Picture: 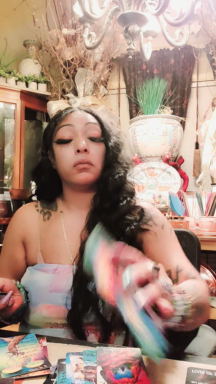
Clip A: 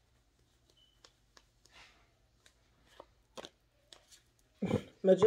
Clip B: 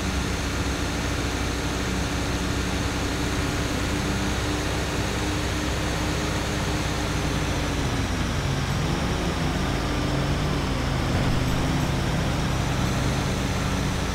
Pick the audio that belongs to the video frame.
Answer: A